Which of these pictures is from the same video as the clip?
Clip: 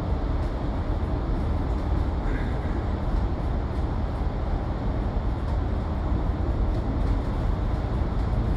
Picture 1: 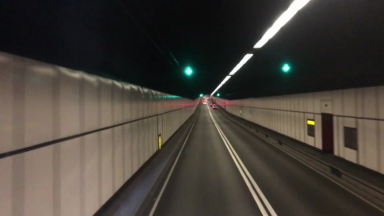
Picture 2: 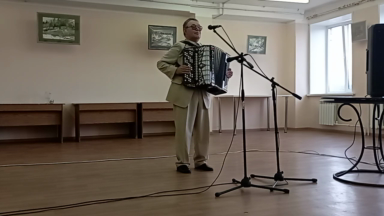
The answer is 1